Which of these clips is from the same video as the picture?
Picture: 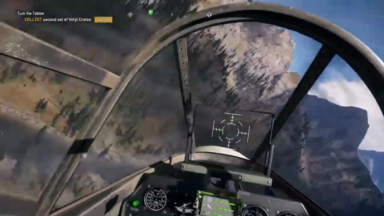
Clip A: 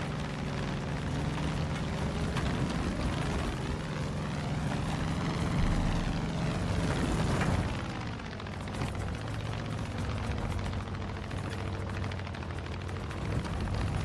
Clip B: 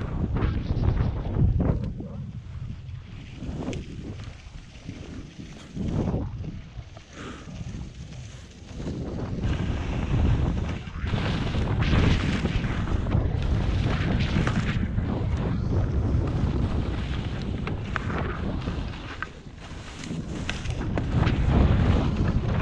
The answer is A